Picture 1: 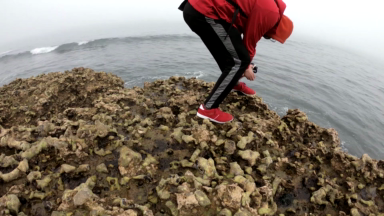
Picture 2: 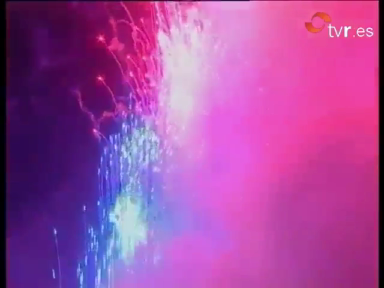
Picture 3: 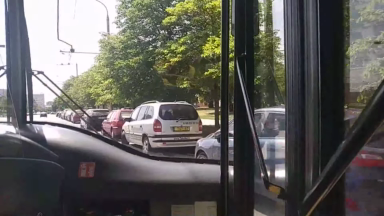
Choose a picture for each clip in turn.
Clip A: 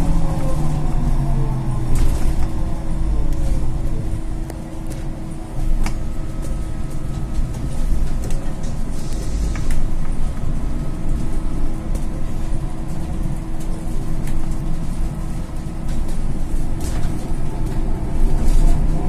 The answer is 3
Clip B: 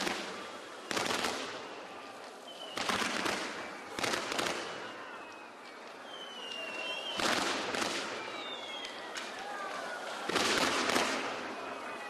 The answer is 2